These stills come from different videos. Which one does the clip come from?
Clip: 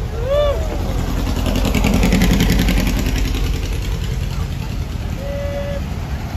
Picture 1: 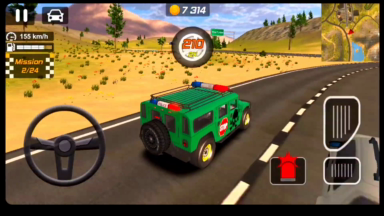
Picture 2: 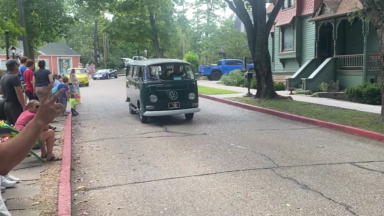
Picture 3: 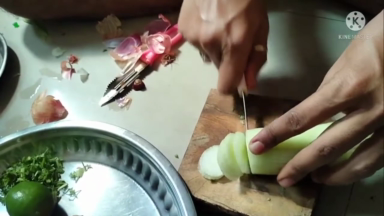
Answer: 2